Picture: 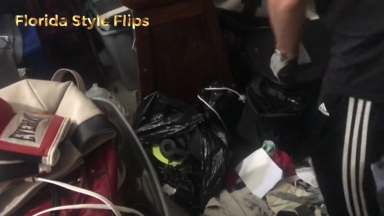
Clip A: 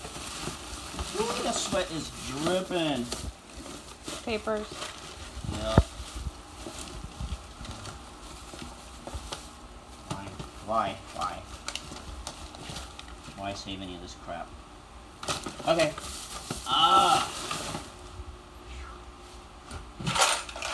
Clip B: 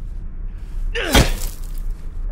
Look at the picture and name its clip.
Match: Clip A